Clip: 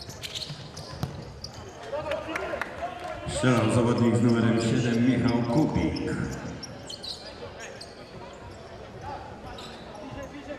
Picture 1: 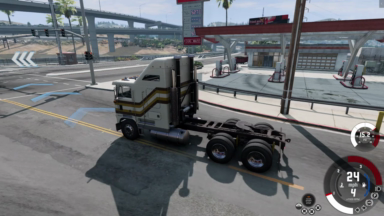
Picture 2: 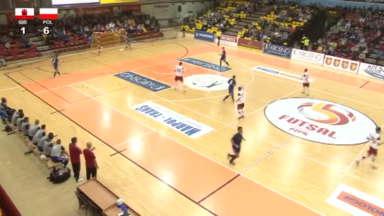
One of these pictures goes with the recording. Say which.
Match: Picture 2